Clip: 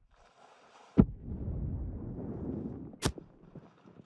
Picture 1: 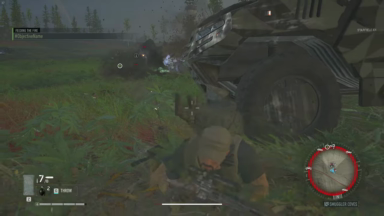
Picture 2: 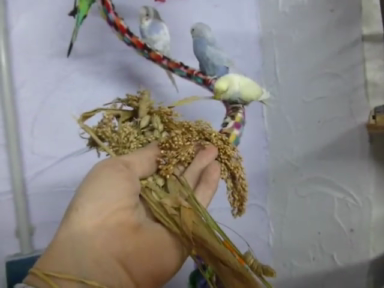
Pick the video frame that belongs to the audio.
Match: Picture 1